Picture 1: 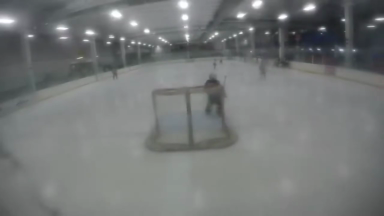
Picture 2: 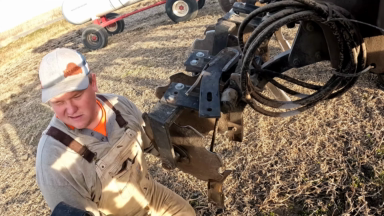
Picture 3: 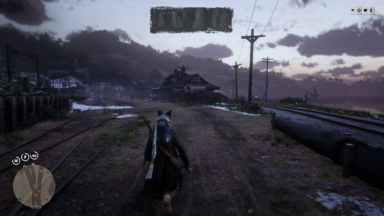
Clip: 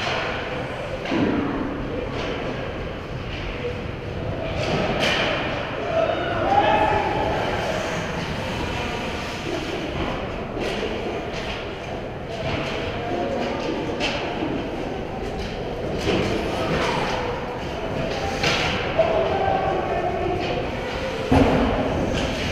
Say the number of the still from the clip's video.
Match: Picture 1